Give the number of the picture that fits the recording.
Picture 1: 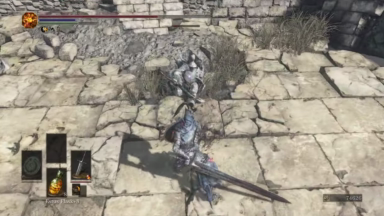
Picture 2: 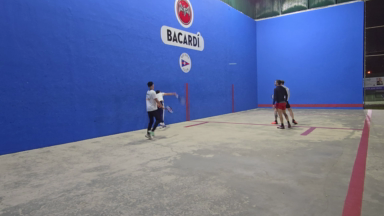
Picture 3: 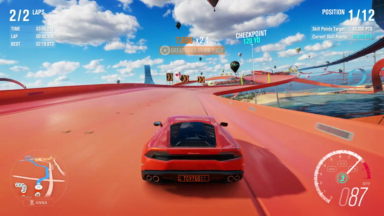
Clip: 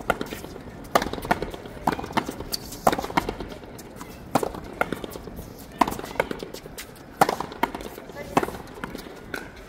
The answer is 2